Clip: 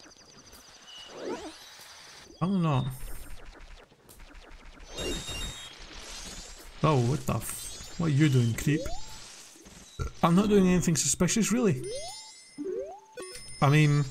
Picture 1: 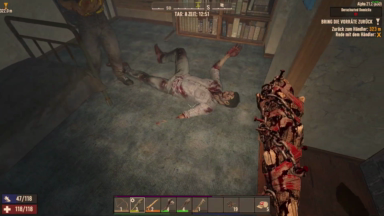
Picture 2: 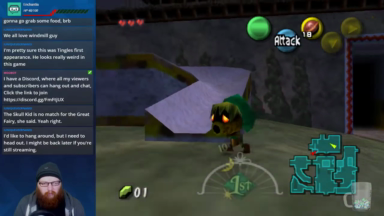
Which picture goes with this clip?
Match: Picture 2